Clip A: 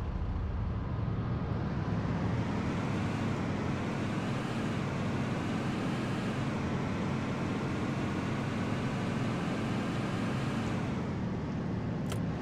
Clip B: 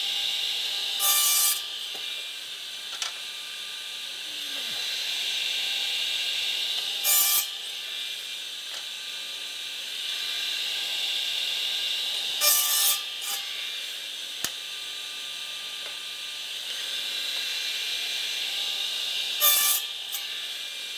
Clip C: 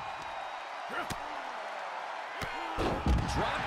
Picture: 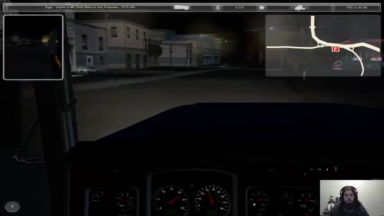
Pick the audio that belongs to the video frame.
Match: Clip A